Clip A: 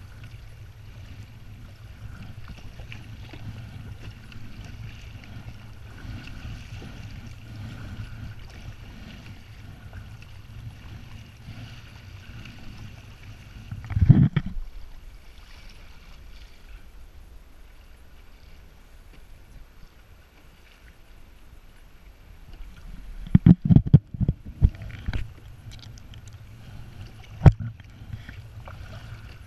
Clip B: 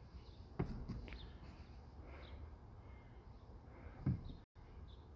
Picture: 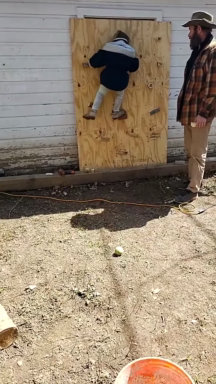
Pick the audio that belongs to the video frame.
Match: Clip B